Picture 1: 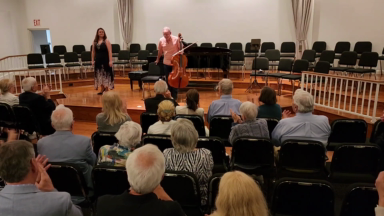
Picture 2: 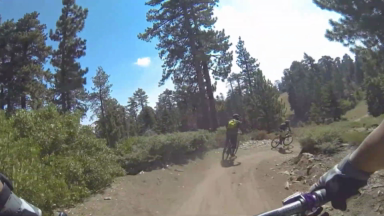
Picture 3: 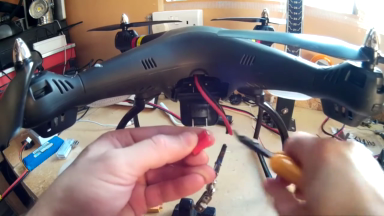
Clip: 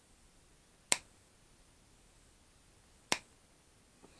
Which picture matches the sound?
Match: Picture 3